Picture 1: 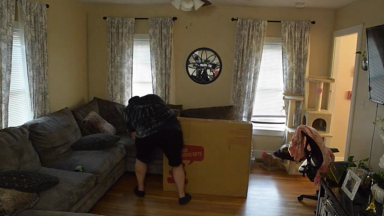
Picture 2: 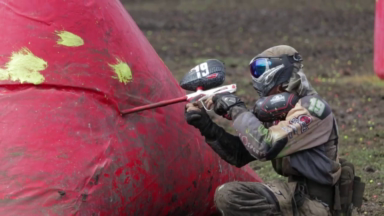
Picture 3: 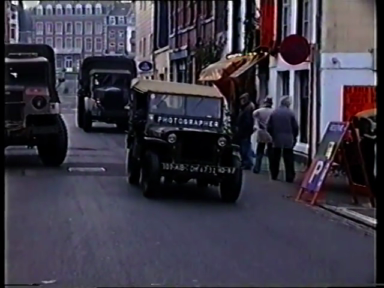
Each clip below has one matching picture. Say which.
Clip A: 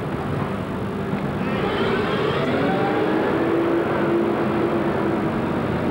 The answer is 3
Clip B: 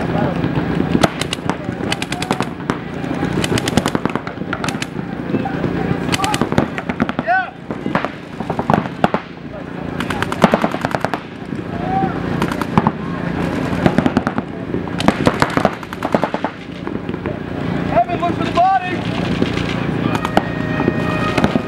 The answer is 2